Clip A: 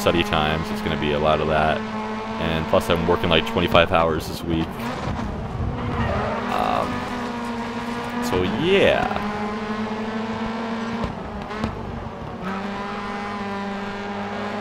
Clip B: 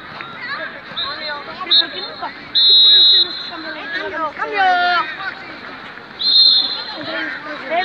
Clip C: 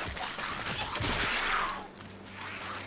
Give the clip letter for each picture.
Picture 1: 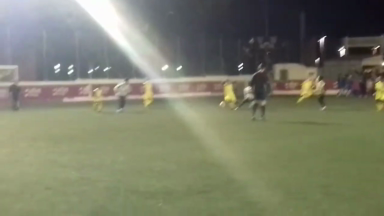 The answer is B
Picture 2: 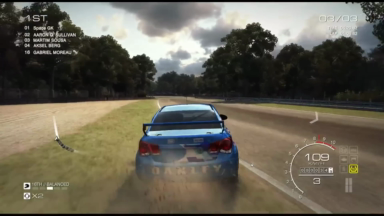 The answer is A